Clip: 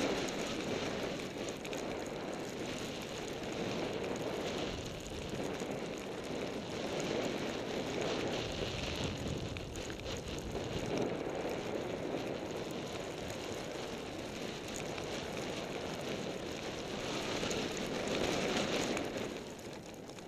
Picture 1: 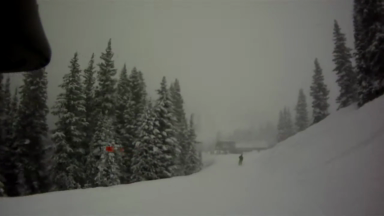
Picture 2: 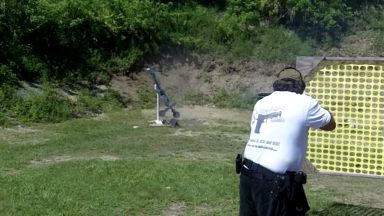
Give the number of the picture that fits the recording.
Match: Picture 1